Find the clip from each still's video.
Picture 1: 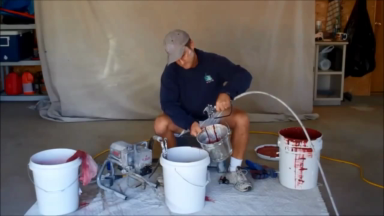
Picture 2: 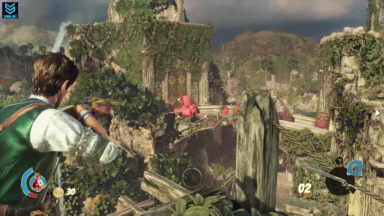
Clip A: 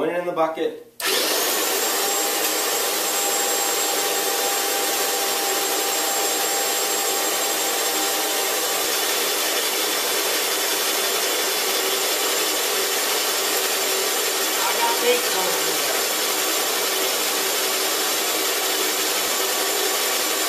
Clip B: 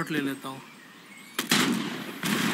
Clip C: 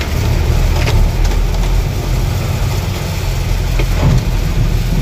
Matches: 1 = A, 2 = B